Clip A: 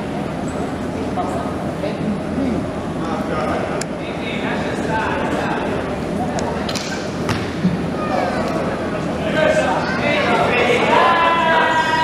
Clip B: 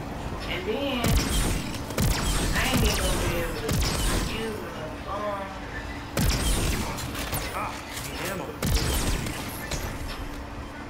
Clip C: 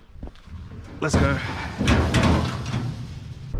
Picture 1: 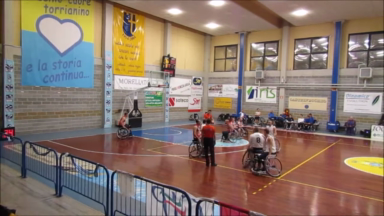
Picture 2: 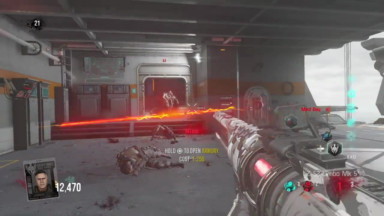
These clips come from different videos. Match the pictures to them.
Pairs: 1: A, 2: B